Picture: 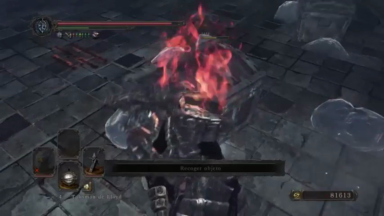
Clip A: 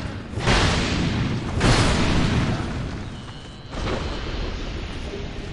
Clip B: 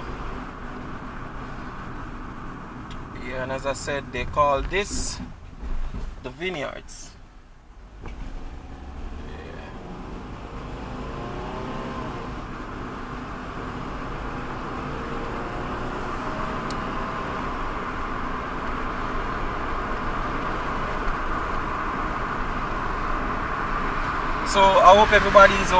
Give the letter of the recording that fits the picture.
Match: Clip A